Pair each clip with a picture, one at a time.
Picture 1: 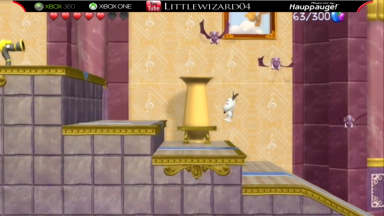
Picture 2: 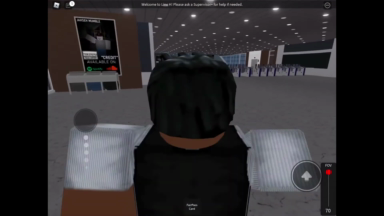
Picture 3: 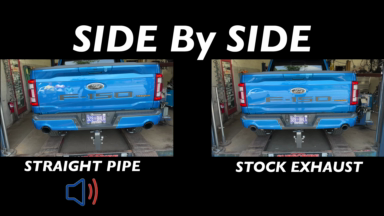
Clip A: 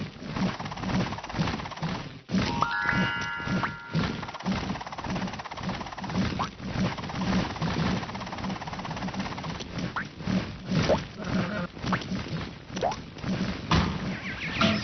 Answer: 1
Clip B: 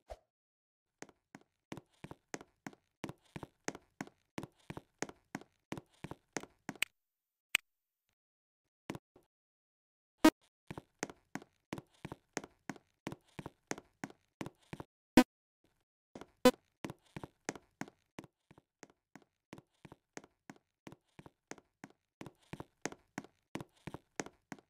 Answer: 2